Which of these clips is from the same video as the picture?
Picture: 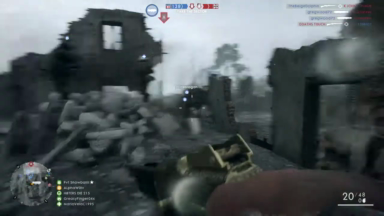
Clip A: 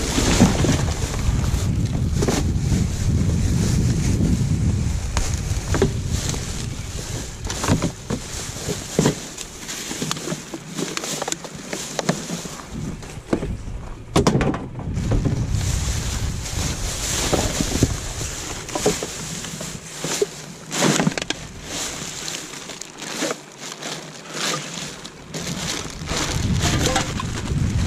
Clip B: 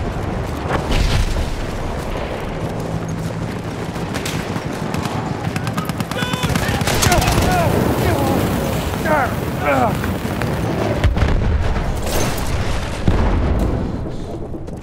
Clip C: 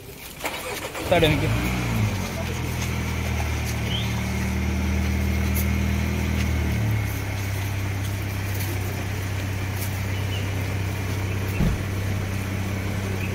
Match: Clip B